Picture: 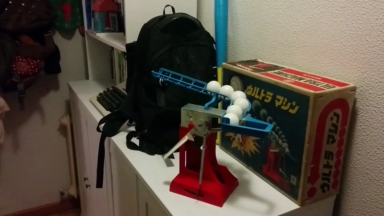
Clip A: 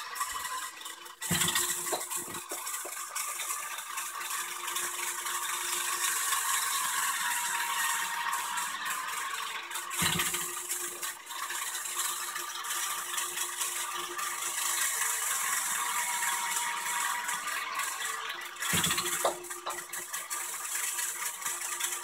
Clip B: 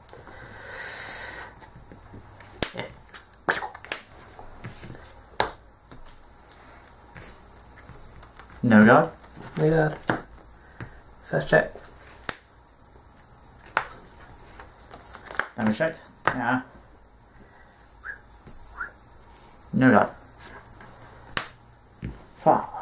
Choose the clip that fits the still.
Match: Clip A